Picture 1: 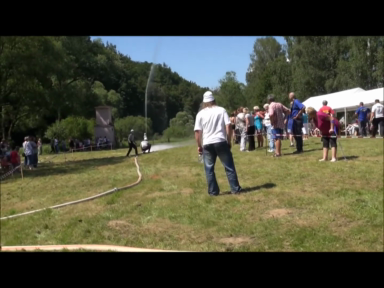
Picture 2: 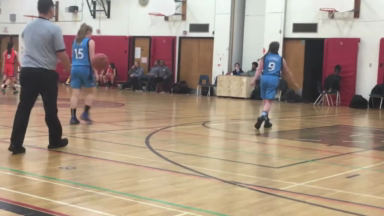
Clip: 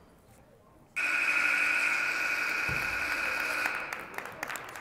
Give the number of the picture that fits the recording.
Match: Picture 2